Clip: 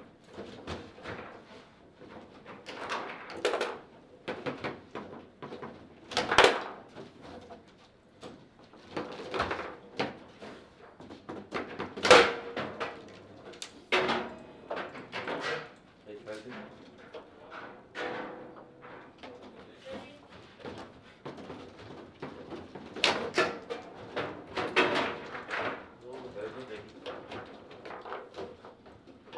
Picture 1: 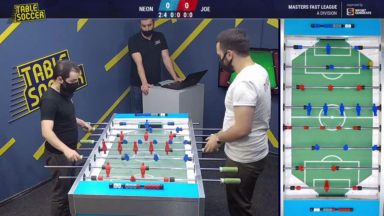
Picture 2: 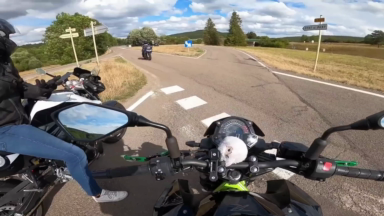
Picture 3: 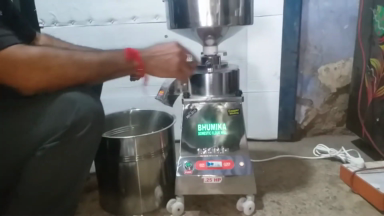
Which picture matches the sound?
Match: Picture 1